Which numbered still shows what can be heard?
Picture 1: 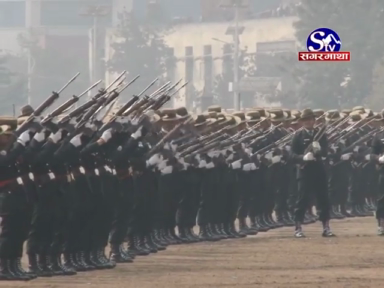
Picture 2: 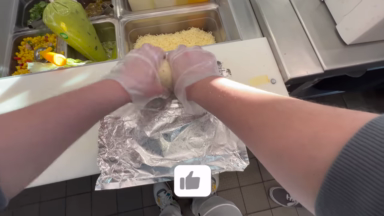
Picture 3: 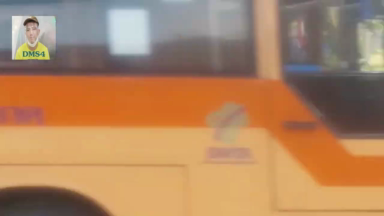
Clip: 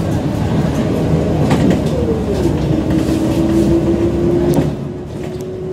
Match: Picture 3